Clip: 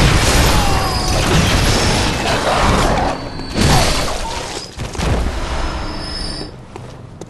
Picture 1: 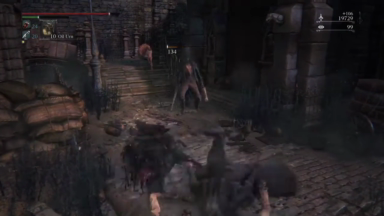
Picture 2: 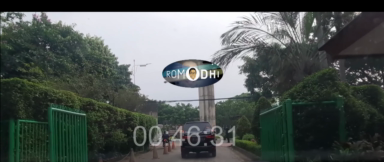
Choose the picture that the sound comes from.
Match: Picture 1